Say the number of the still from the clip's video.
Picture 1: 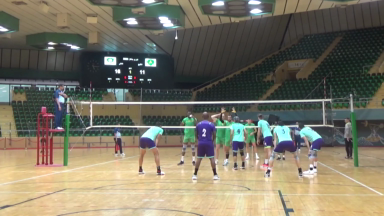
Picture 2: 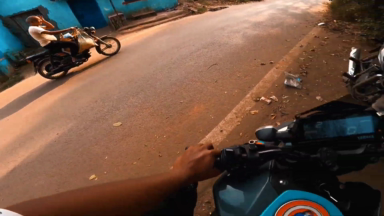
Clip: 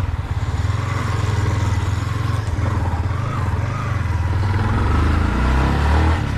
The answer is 2